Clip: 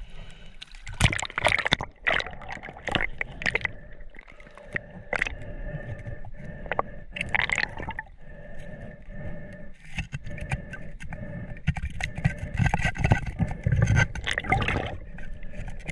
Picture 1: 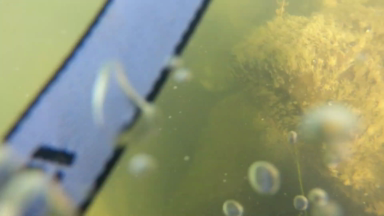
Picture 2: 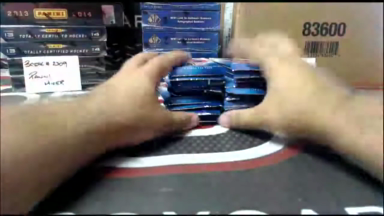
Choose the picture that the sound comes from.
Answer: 1